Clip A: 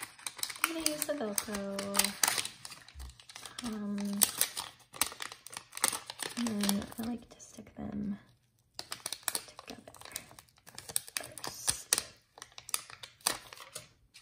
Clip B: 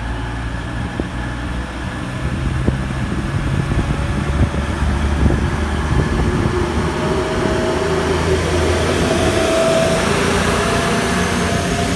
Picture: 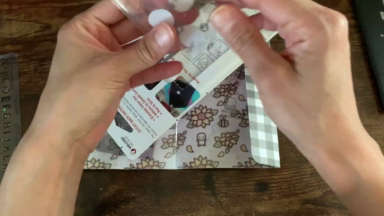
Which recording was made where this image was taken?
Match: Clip A